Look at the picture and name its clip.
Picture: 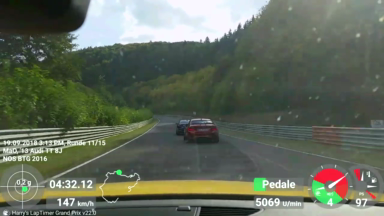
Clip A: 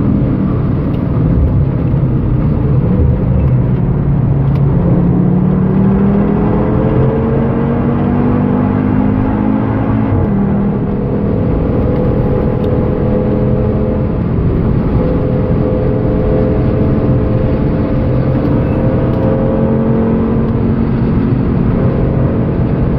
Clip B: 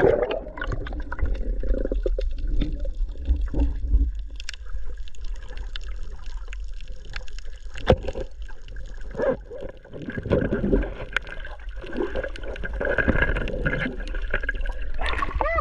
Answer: A